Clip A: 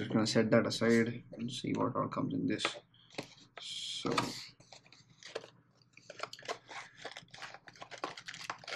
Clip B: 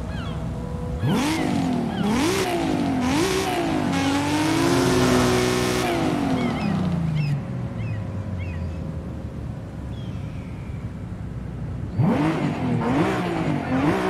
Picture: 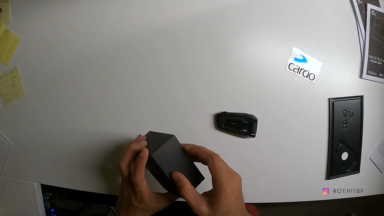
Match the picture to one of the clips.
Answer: A